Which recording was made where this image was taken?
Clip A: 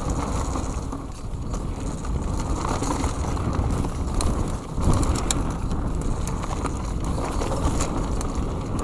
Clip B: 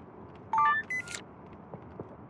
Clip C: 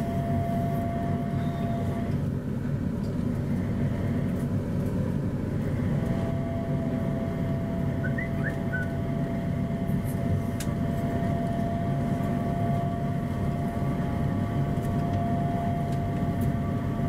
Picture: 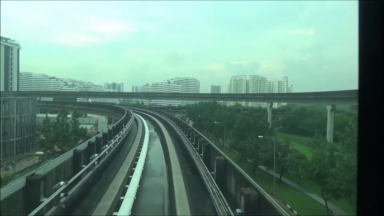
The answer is C